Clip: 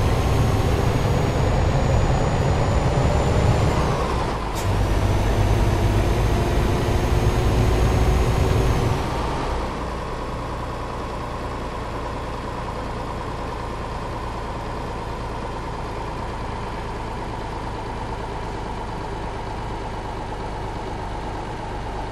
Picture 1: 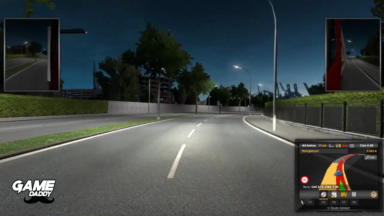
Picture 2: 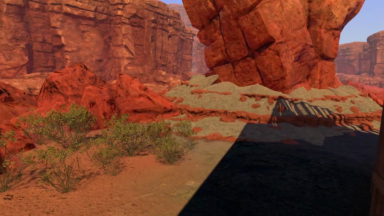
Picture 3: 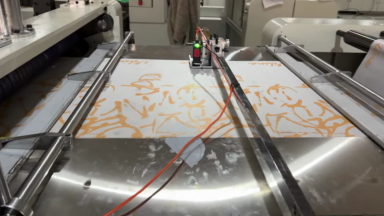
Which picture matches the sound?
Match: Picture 1